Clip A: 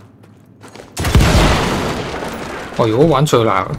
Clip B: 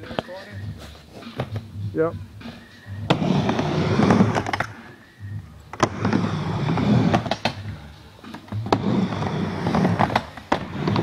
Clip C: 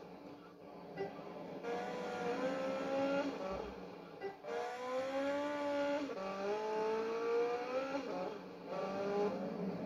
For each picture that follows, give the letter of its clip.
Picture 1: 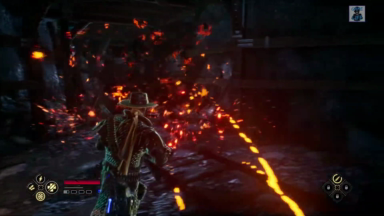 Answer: A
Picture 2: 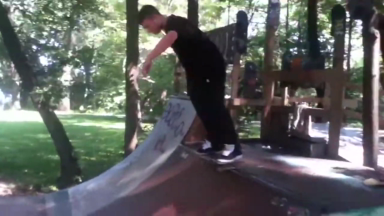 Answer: B